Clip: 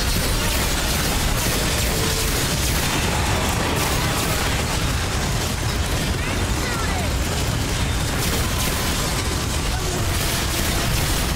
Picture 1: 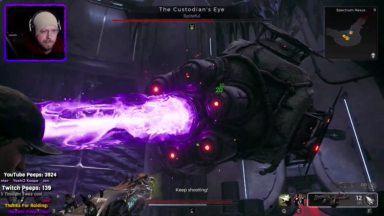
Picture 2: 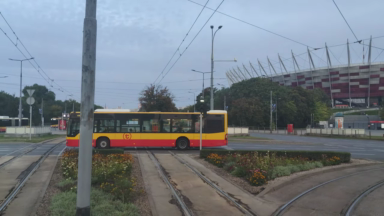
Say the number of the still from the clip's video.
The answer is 1